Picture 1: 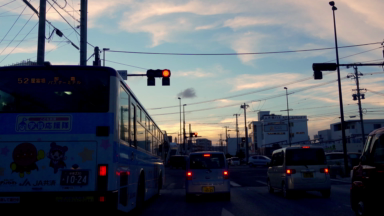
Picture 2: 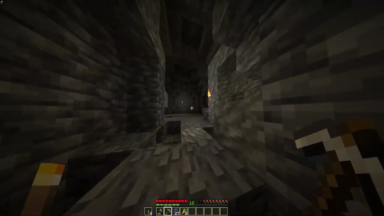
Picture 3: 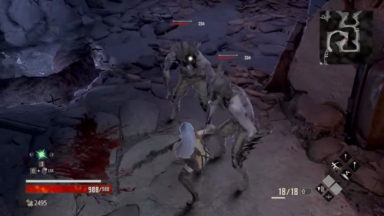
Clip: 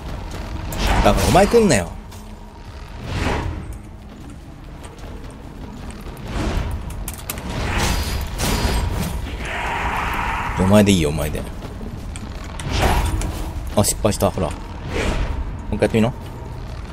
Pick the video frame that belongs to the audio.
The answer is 3